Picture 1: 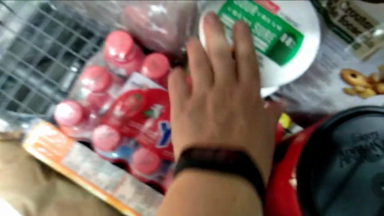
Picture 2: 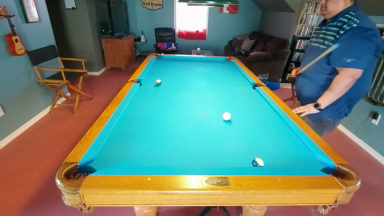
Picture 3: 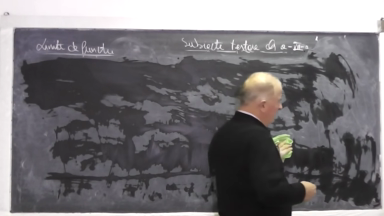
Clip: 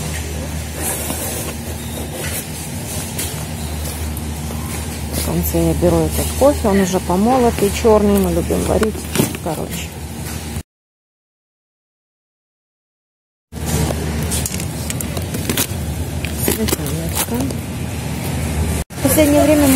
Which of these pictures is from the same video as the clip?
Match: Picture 1